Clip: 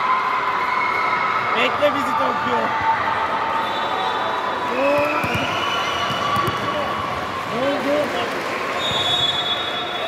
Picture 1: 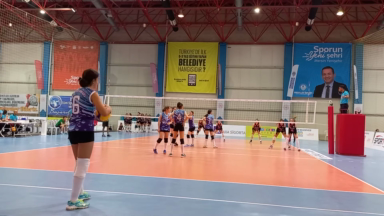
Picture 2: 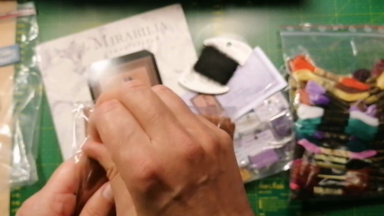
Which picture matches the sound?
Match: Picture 1